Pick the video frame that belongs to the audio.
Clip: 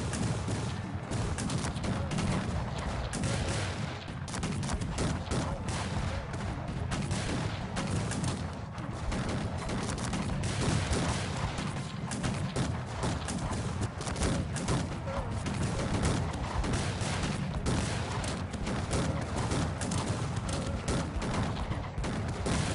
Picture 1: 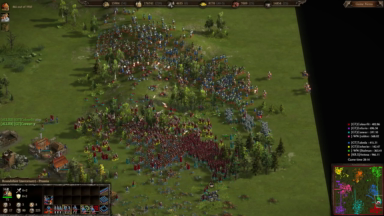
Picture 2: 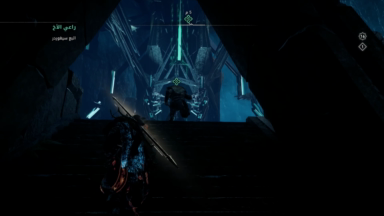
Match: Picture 1